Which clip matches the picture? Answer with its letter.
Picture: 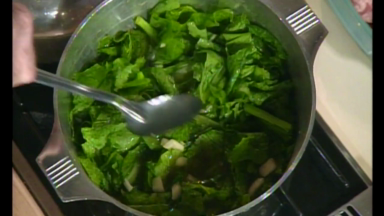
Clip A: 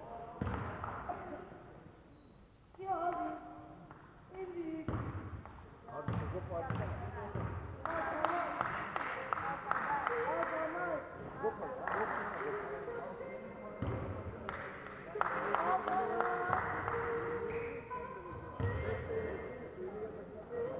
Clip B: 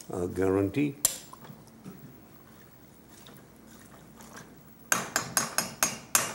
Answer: B